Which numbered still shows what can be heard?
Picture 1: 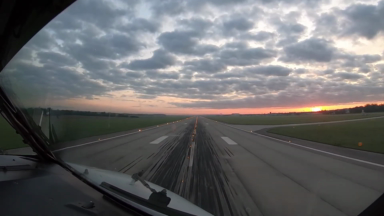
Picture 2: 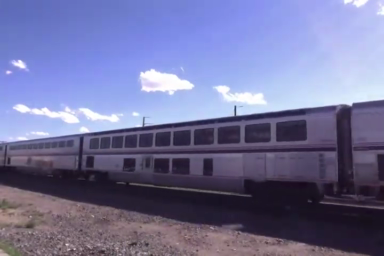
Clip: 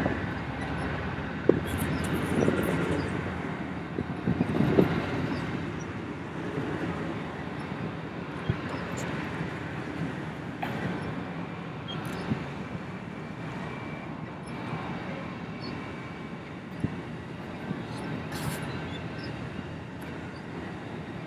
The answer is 2